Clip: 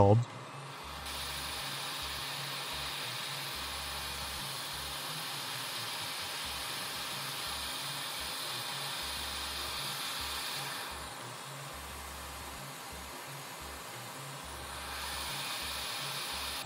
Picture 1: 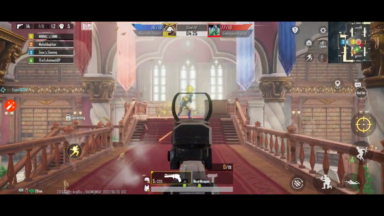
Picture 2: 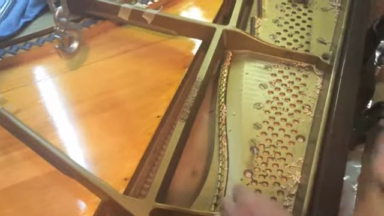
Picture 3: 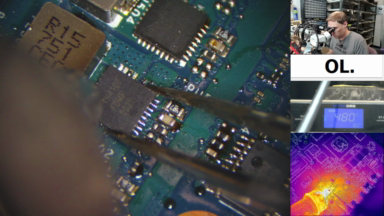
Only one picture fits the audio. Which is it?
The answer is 3